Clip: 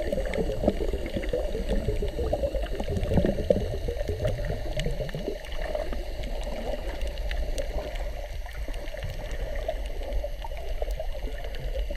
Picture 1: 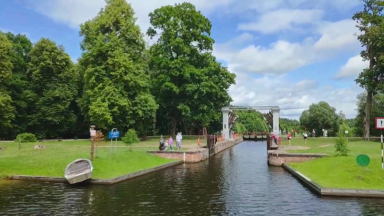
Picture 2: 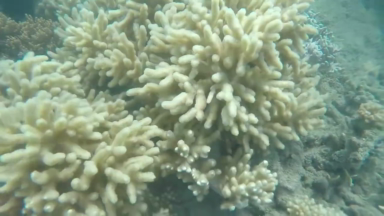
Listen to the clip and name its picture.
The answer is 2